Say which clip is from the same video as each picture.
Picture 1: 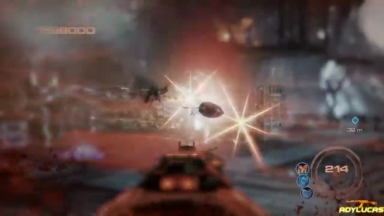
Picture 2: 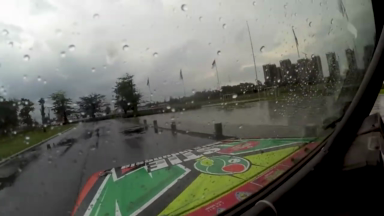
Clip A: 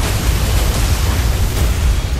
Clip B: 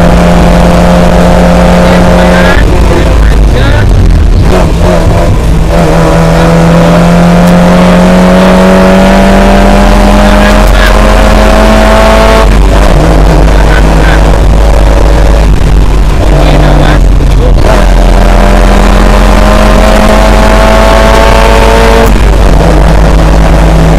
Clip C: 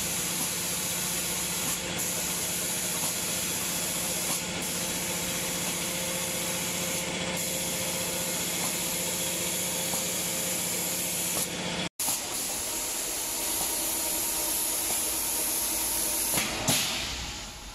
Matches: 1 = A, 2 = B